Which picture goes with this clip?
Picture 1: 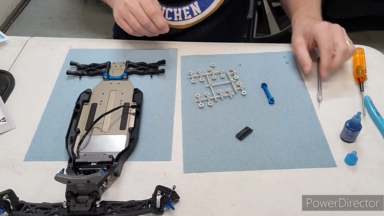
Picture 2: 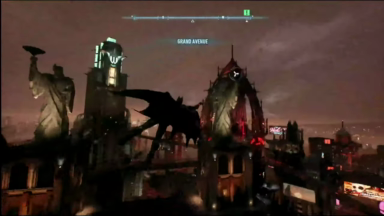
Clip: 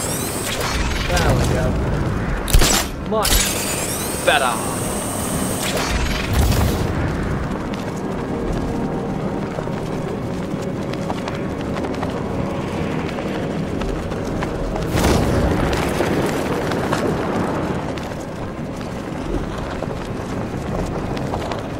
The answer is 2